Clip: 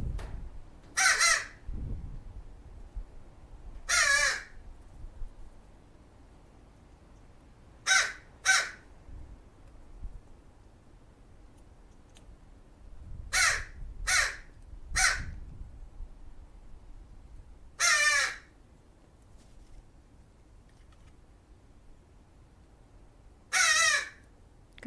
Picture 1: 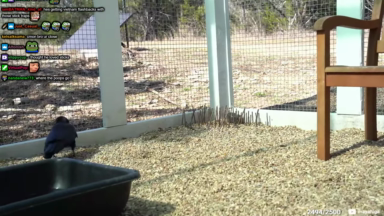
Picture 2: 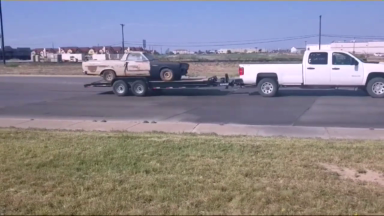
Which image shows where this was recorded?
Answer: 1